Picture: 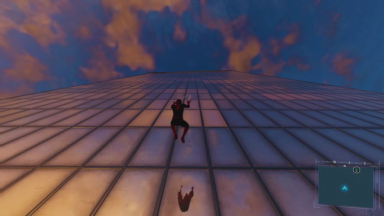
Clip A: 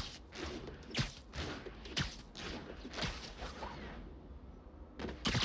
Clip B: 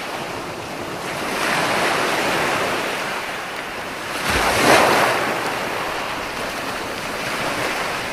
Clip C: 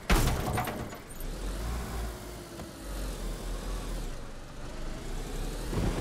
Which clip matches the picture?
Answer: A